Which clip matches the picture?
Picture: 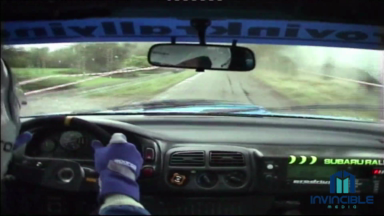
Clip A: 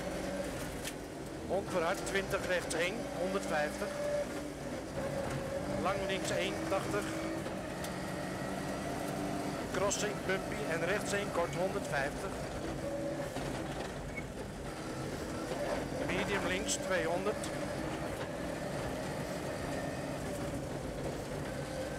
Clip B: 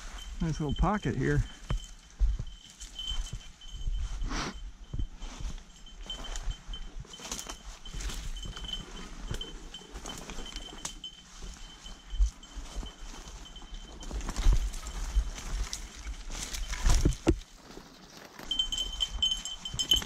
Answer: A